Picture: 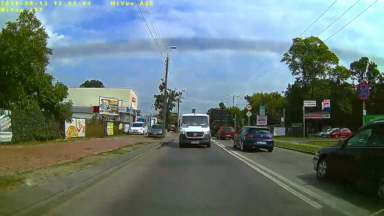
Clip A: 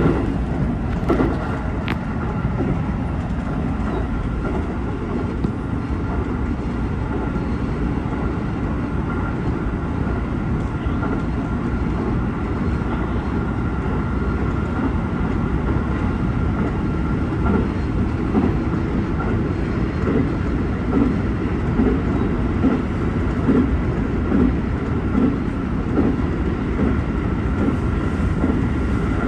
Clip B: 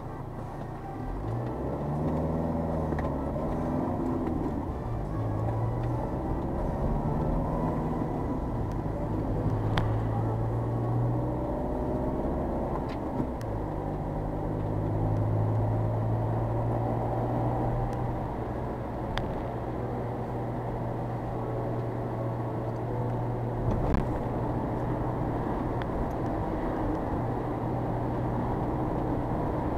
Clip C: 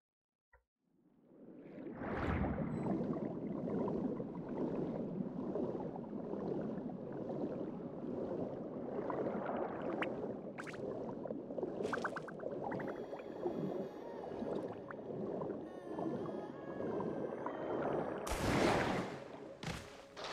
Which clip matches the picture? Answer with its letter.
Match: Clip B